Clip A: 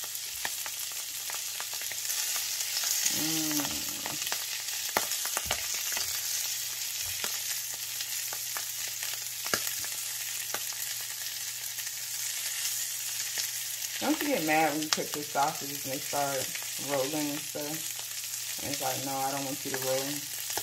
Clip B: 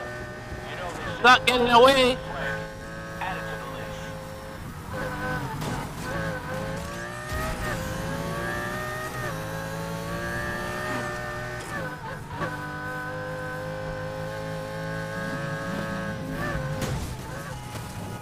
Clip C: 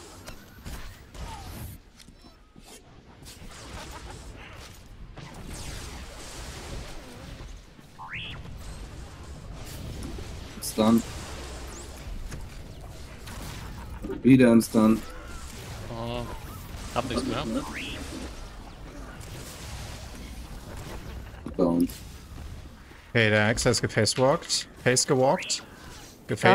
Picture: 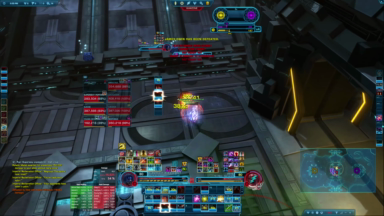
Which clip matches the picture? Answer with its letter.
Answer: C